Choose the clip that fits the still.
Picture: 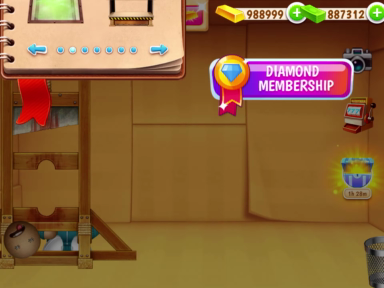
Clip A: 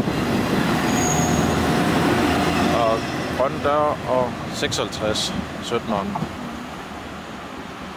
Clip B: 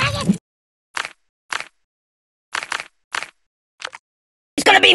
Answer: B